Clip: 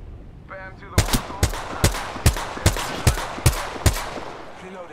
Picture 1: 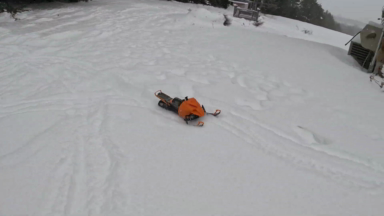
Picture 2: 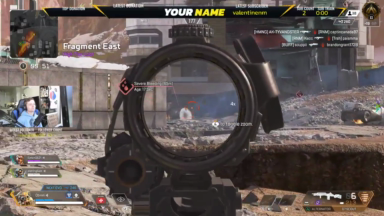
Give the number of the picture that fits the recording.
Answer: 2